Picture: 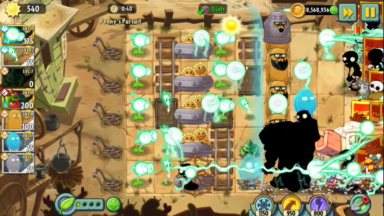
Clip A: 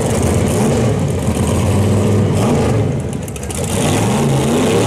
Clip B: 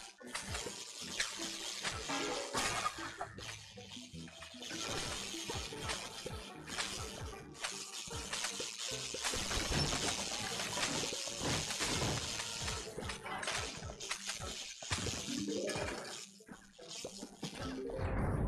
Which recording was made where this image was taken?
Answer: B